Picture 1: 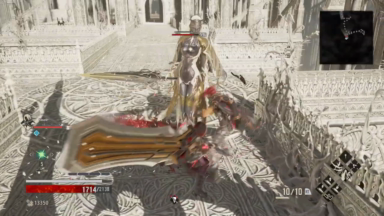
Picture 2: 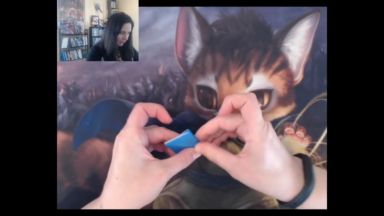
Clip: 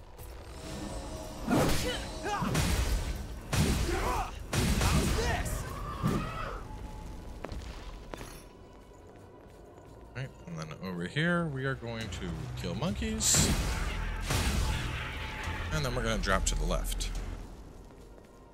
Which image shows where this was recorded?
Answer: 1